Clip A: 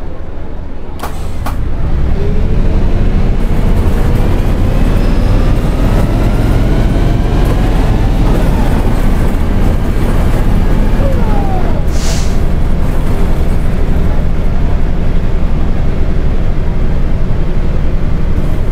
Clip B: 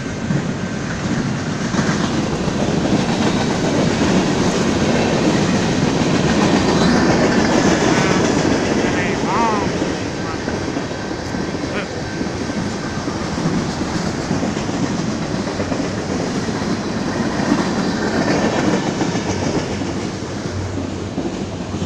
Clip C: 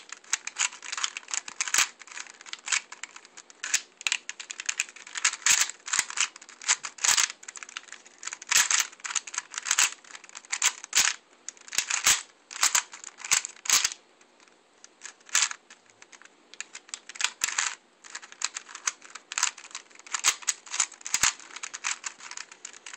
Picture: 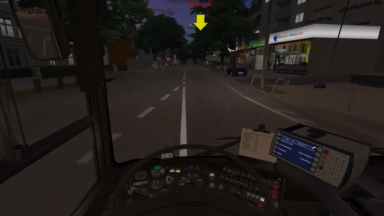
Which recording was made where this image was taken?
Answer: A